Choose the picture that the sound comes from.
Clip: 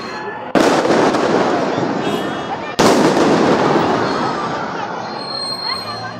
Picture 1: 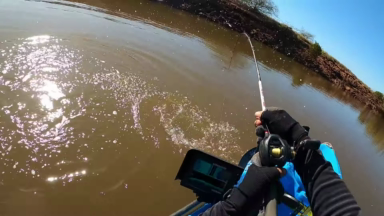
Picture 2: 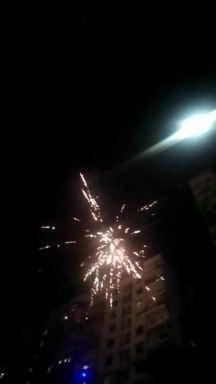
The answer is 2